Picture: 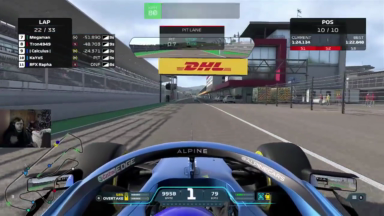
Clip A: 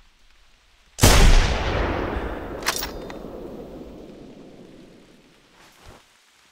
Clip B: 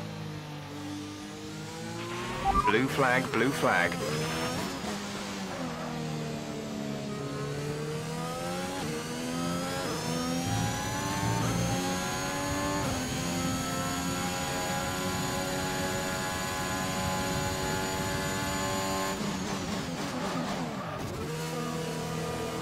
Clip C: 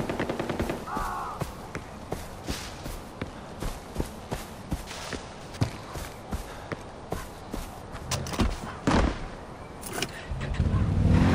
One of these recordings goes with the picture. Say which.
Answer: B